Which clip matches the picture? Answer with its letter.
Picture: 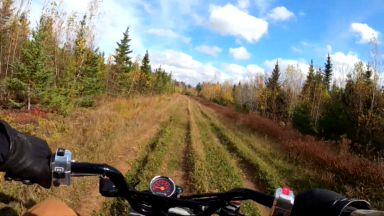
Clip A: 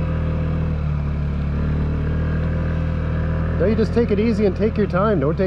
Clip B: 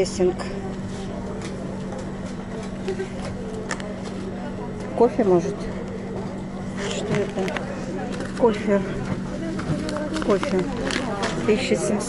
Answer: A